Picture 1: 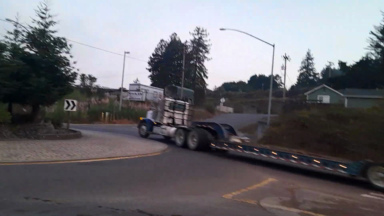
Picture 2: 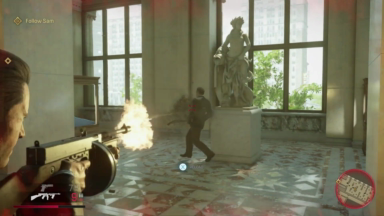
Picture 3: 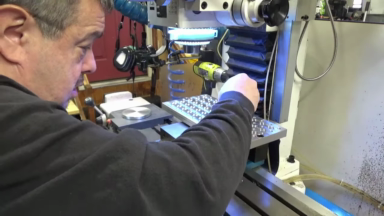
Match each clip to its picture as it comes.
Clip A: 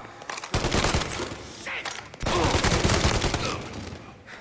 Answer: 2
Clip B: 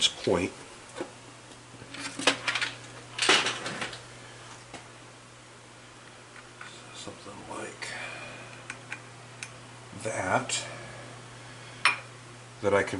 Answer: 3